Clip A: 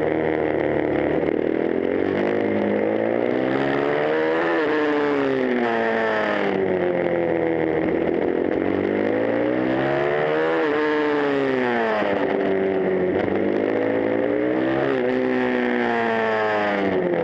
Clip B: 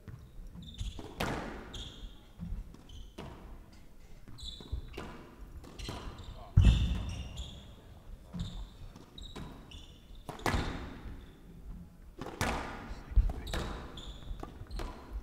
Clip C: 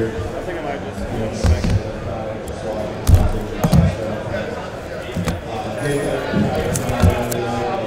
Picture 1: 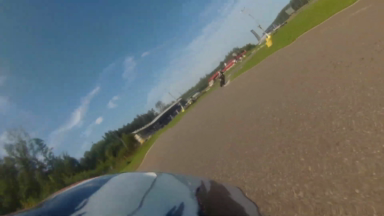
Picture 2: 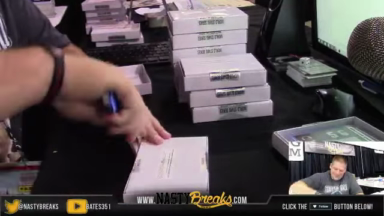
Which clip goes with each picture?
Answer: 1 A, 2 C